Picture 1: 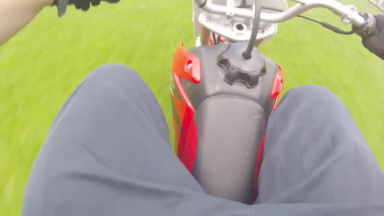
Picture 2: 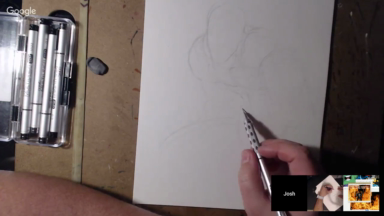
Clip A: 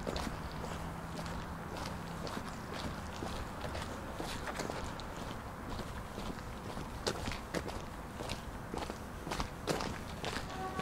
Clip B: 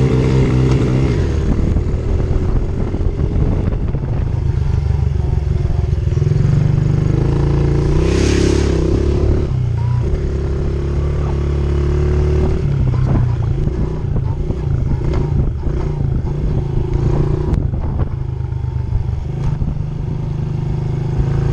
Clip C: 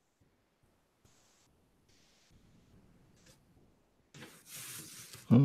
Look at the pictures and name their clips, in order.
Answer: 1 B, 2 C